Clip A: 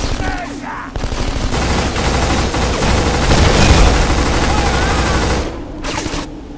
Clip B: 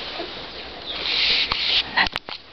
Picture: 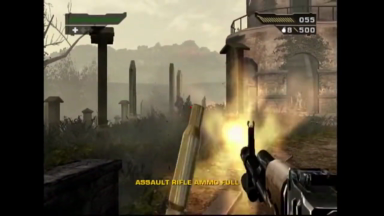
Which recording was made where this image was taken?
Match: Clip A